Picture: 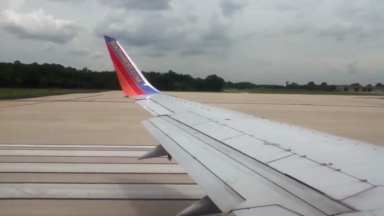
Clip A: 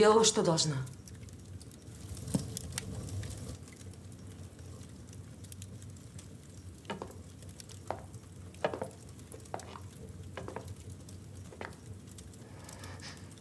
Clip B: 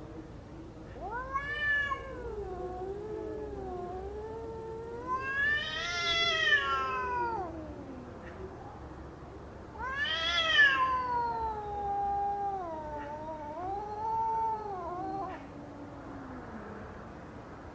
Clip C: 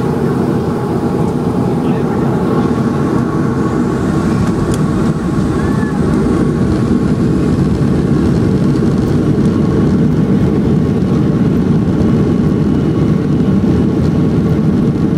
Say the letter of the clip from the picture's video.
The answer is C